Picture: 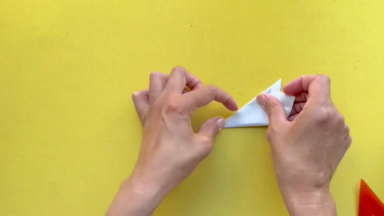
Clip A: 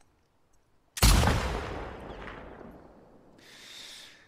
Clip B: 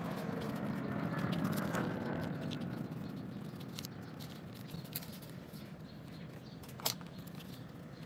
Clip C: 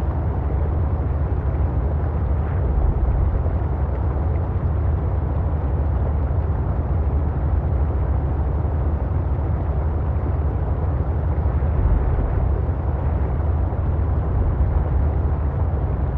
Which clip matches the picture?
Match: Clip B